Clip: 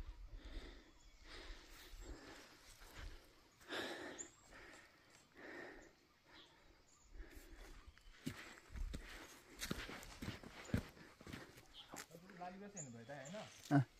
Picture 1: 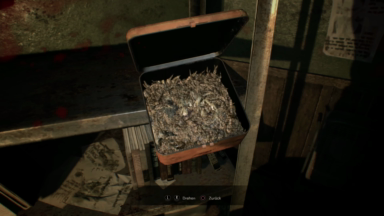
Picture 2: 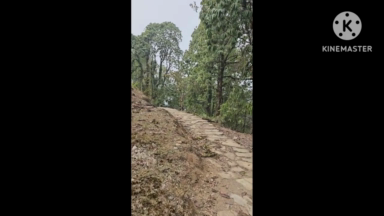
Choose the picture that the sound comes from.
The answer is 2